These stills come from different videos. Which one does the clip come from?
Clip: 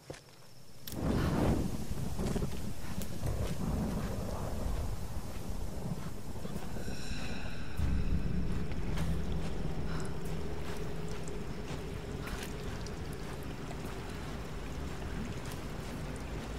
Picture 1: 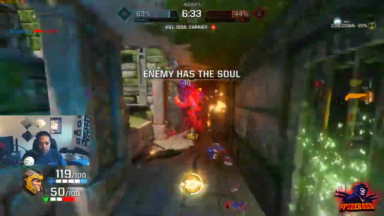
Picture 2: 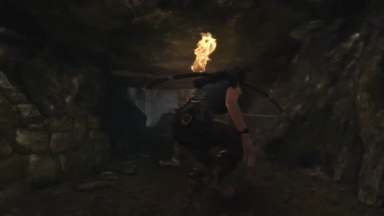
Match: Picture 2